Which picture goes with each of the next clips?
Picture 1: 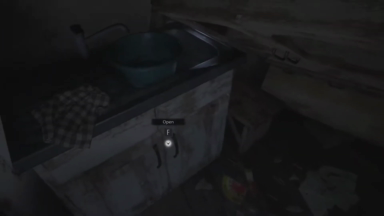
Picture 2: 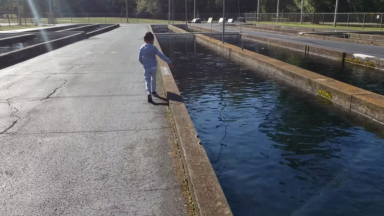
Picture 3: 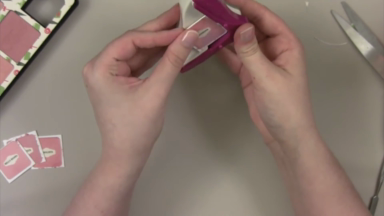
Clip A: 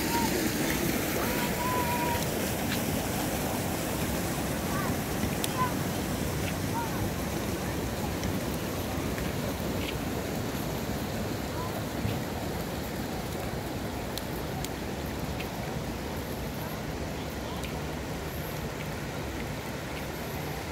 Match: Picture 2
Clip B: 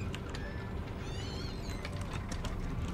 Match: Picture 1